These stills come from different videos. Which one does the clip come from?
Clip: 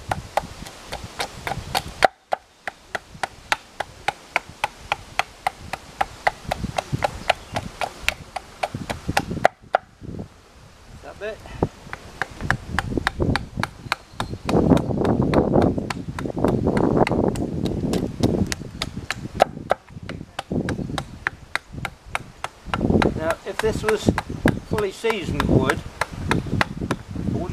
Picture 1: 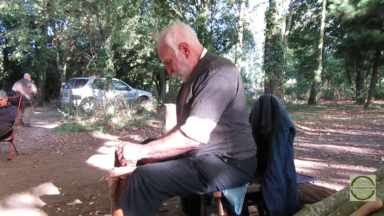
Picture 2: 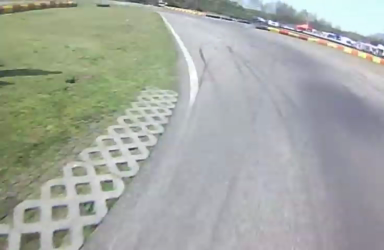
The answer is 1